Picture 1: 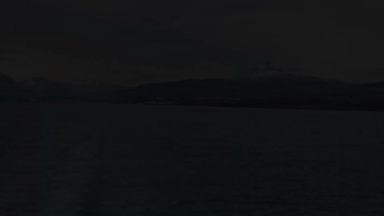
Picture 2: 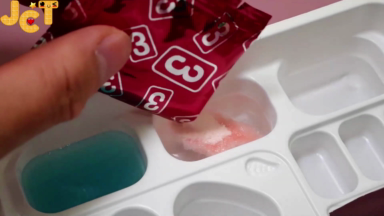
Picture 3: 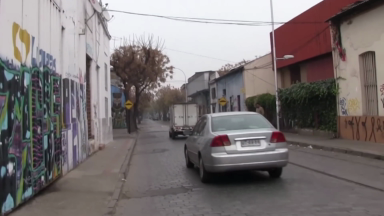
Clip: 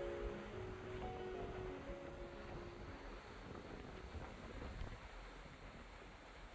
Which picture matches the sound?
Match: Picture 1